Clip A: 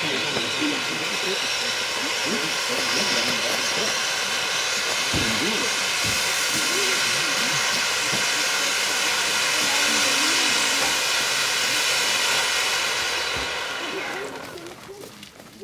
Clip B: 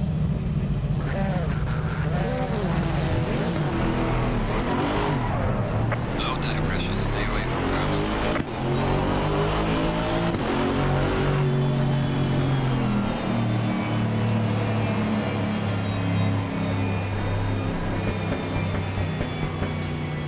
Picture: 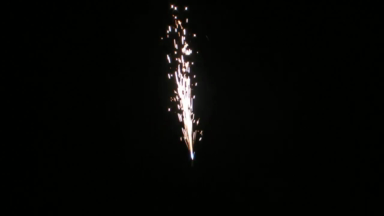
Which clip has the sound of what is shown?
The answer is A